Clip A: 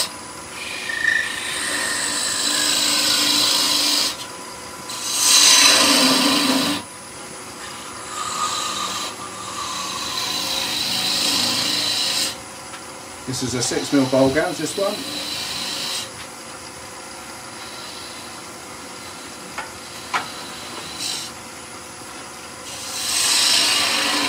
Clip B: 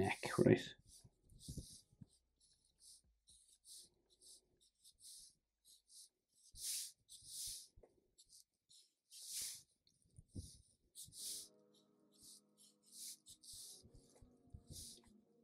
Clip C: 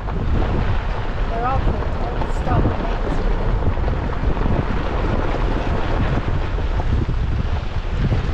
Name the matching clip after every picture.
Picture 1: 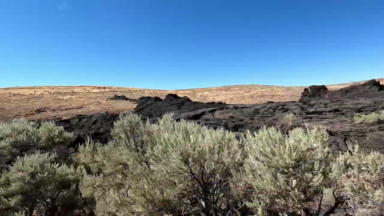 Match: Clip C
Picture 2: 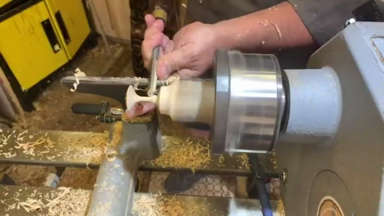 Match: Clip A